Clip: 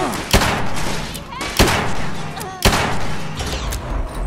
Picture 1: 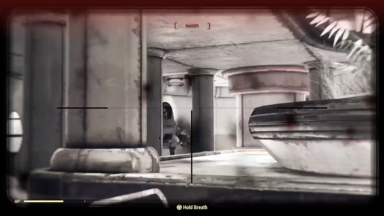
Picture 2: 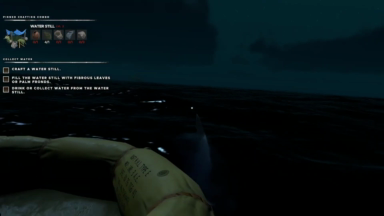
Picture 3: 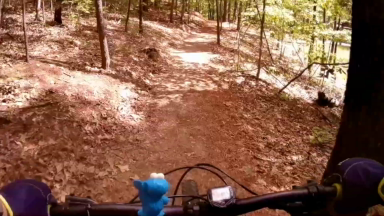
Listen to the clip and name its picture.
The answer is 1